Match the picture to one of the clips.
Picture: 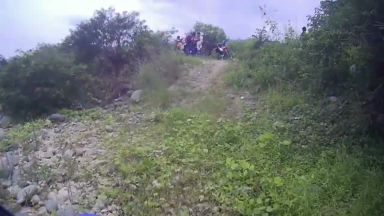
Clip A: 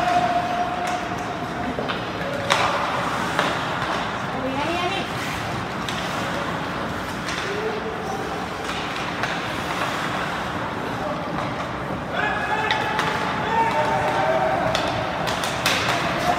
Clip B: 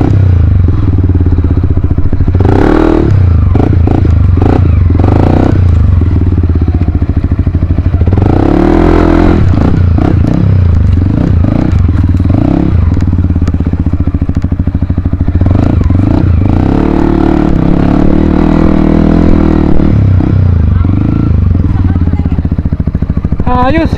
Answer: B